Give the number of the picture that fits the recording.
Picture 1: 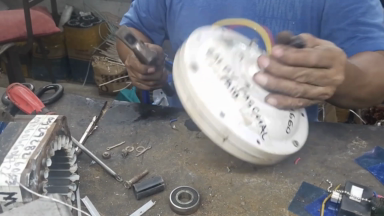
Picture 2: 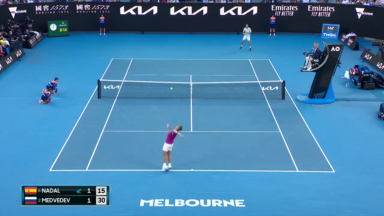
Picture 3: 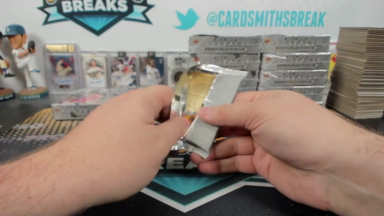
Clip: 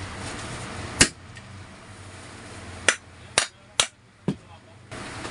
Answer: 1